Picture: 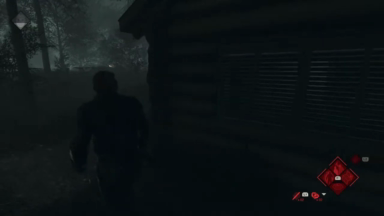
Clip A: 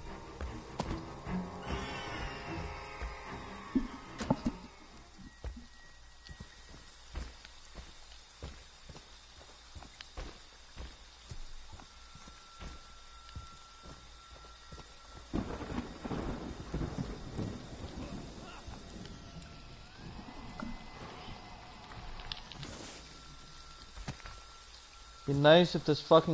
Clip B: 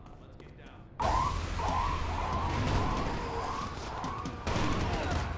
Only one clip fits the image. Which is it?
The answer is A